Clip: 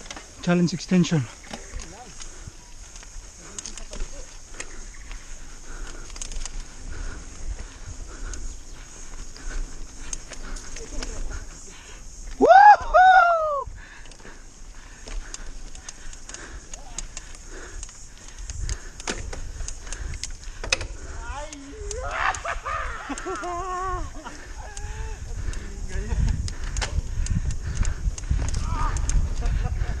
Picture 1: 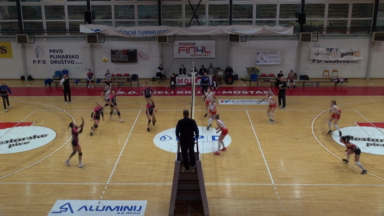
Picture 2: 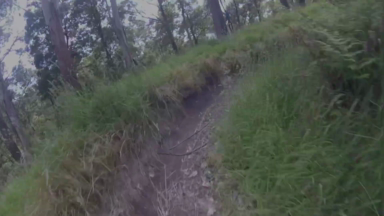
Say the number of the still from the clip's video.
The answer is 2